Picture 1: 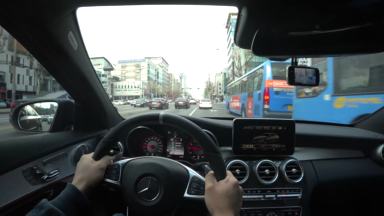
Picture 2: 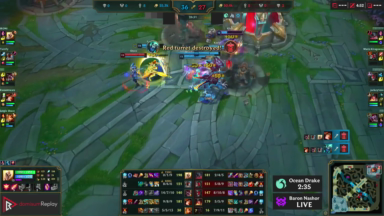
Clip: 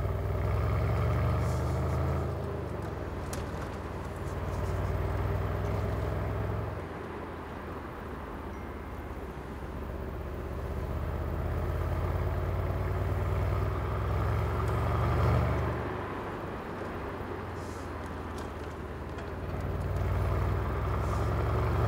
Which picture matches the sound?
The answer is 1